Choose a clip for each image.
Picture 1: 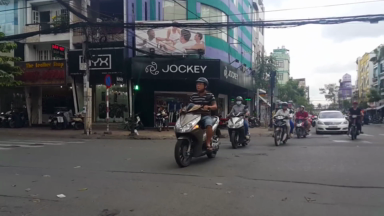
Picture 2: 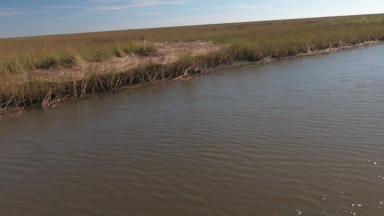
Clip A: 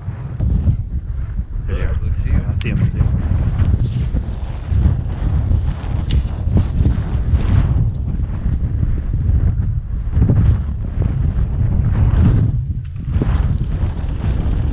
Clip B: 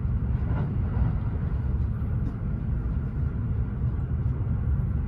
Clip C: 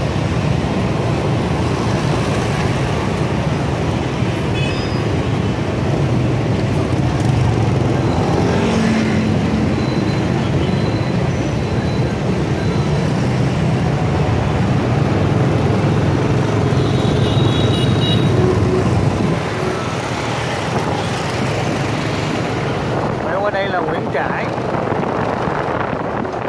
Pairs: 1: C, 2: A